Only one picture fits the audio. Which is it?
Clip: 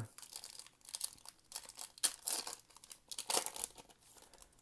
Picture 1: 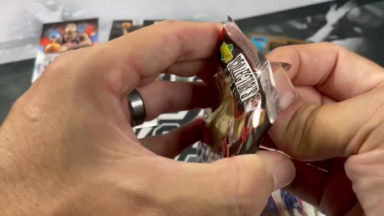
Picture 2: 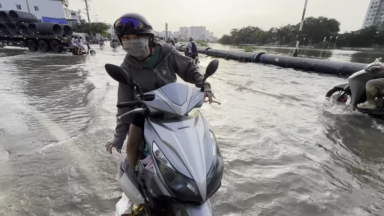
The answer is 1